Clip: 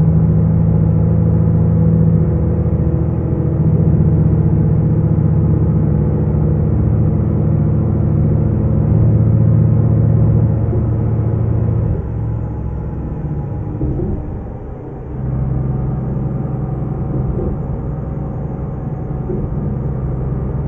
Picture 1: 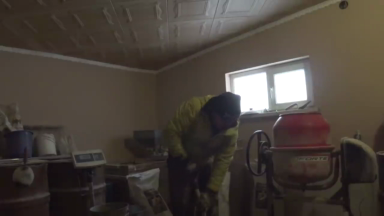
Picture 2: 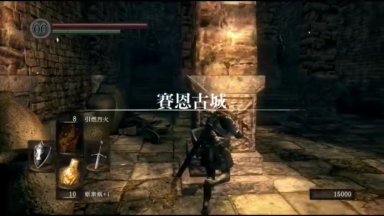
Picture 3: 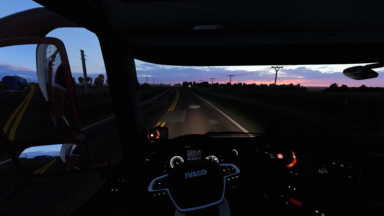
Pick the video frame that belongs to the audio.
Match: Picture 3